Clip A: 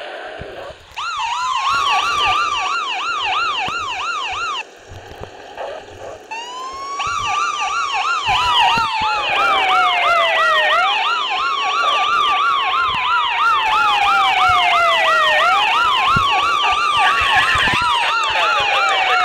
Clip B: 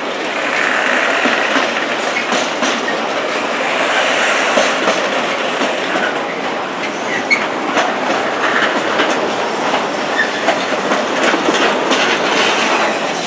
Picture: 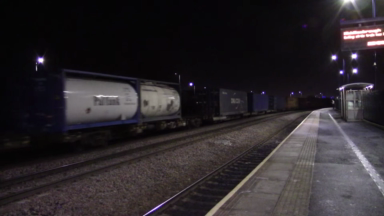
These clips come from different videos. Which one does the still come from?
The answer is B